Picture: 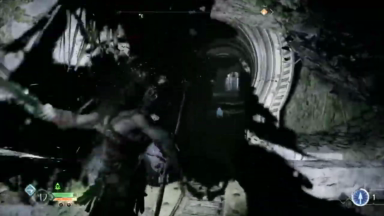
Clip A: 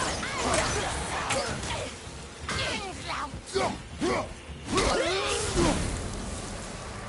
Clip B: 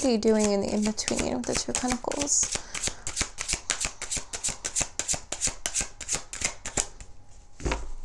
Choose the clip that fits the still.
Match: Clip A